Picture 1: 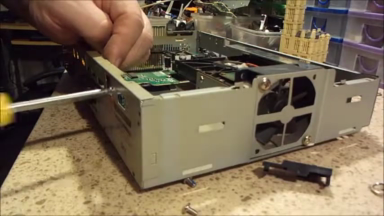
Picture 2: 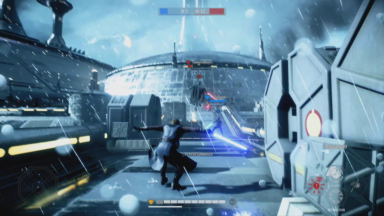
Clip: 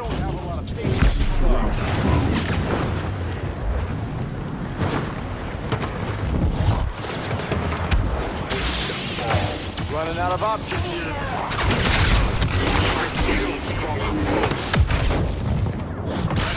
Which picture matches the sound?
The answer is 2